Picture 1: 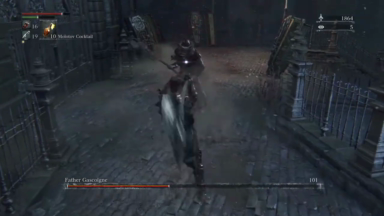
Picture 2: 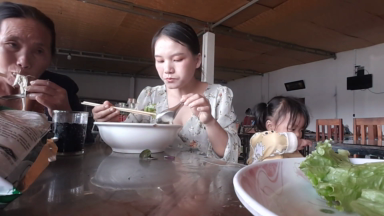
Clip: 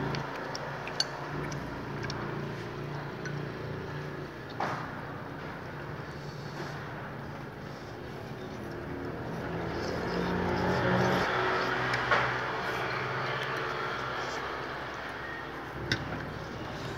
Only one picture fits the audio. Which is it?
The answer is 2